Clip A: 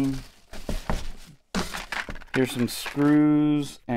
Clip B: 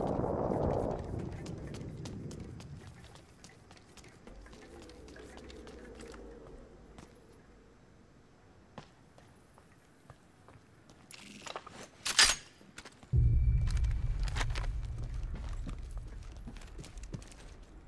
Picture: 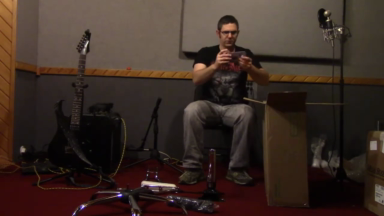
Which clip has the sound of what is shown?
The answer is A